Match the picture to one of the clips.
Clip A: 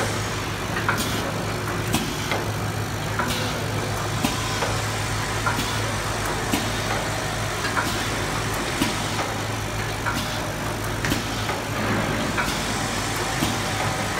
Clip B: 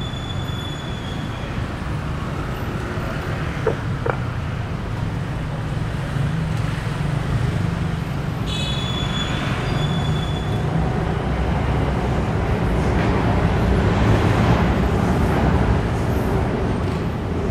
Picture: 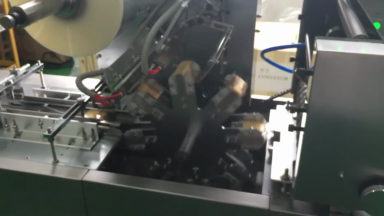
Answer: A